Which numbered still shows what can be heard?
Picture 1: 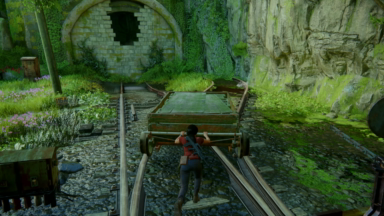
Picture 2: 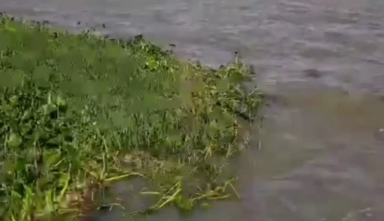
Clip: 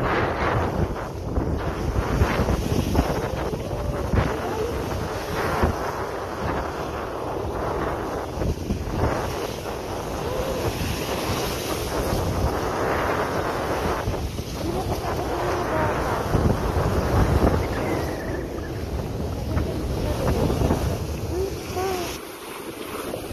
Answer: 2